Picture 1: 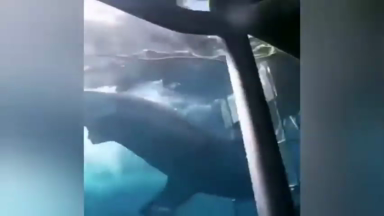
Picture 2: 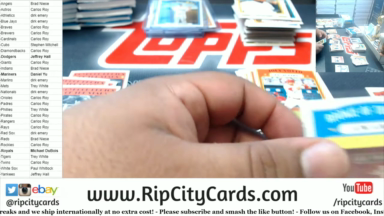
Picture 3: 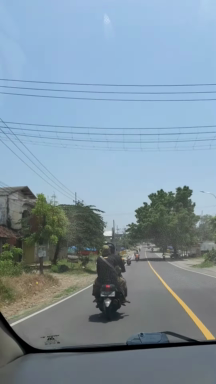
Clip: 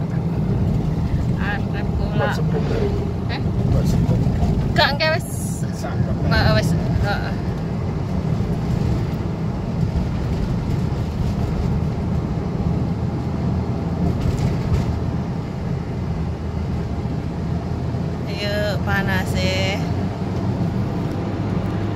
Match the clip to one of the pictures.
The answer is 3